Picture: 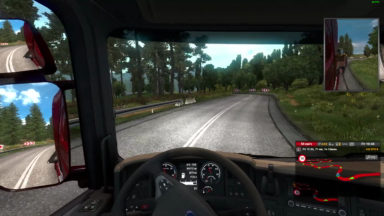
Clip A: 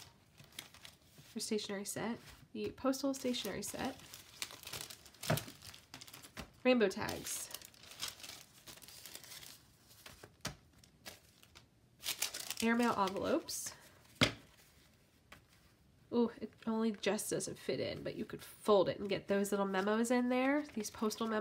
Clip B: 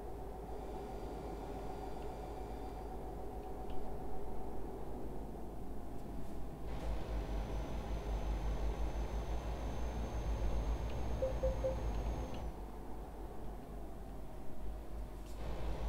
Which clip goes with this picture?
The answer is B